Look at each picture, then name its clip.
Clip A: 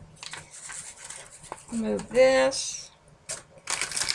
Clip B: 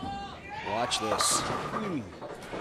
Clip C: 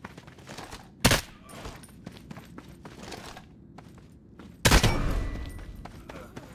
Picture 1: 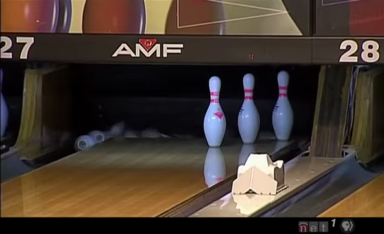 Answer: B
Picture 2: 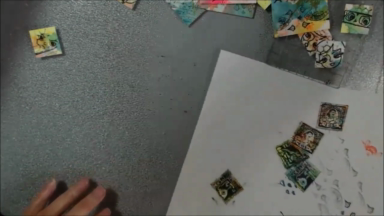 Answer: A